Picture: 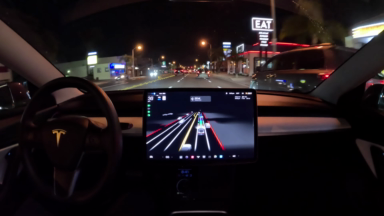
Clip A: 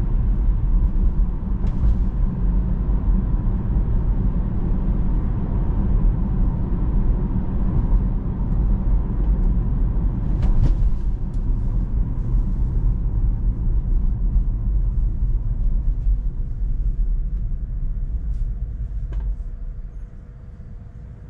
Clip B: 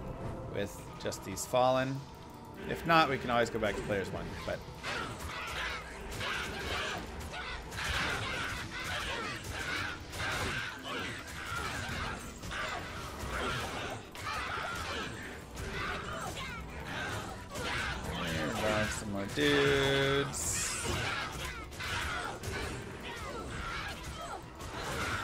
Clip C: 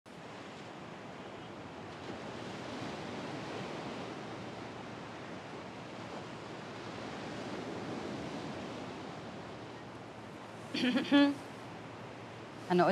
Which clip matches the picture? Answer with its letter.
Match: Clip A